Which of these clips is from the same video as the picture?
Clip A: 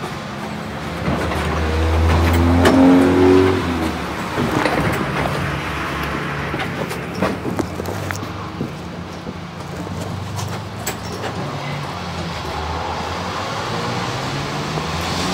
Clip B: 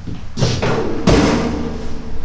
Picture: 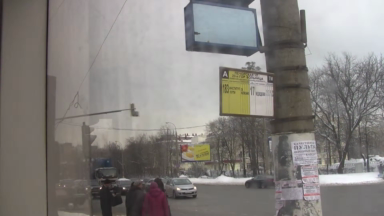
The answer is A